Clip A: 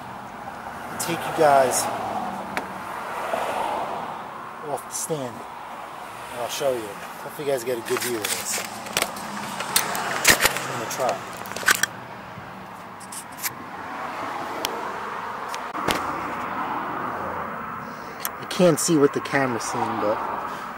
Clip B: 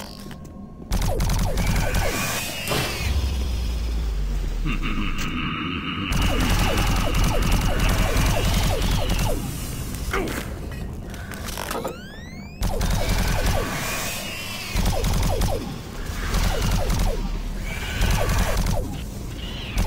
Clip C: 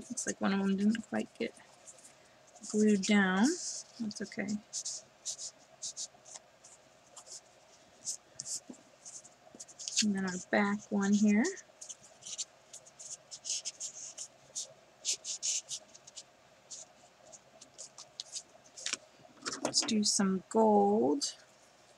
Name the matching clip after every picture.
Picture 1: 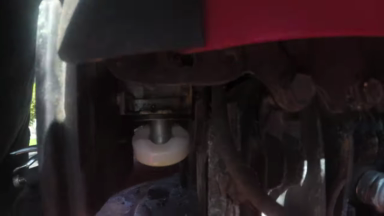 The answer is A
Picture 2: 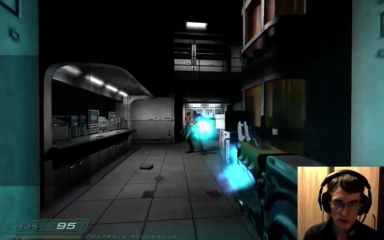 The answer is B